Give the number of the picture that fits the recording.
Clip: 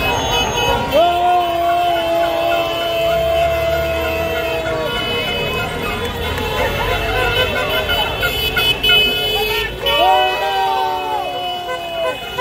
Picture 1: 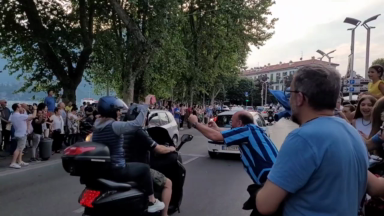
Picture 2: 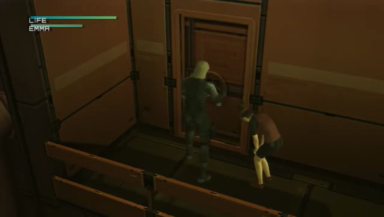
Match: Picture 1